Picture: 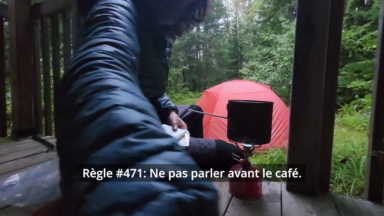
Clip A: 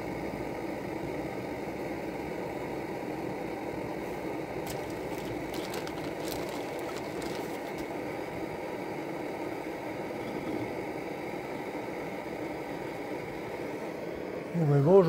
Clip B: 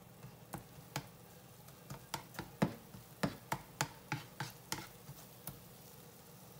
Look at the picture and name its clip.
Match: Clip A